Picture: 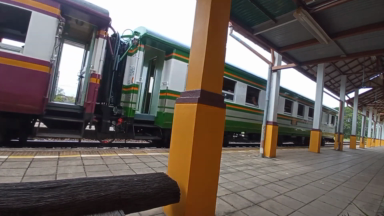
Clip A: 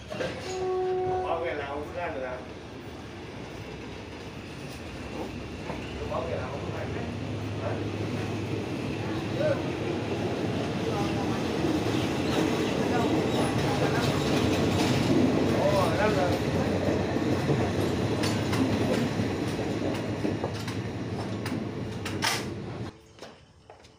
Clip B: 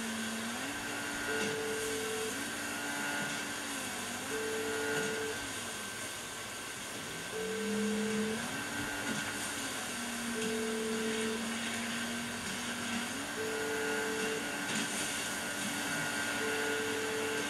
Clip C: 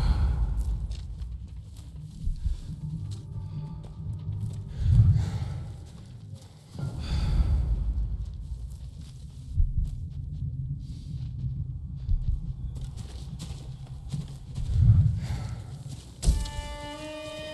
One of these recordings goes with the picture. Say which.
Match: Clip A